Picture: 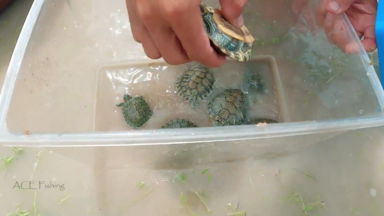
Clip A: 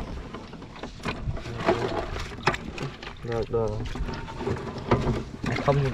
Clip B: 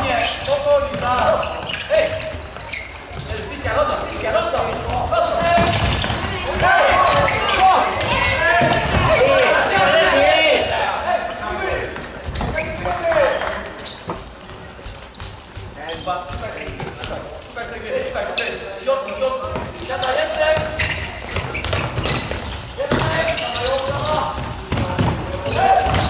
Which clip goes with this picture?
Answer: A